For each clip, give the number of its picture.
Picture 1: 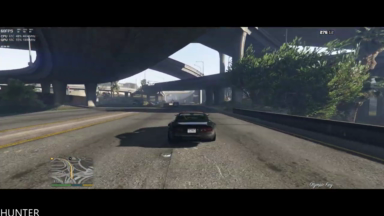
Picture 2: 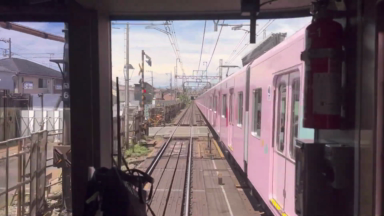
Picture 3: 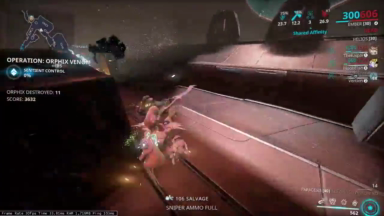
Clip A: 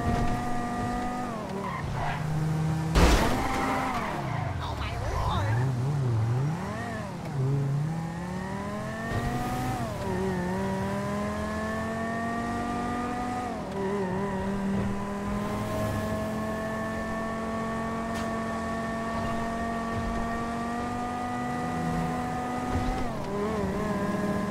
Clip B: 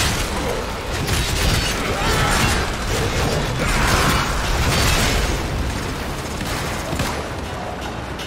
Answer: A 1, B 3